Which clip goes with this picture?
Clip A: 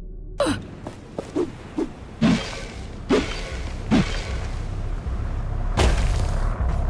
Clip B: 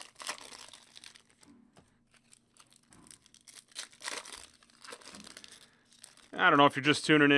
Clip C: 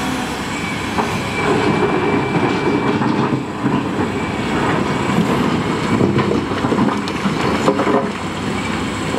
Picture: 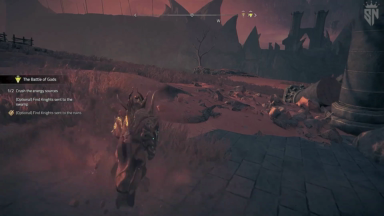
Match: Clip A